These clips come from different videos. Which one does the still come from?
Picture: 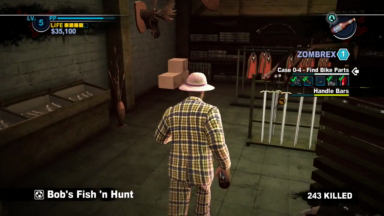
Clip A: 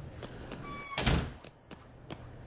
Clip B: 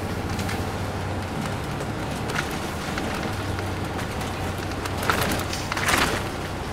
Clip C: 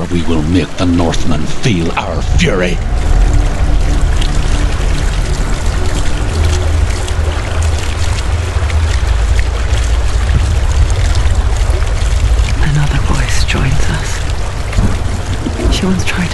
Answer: A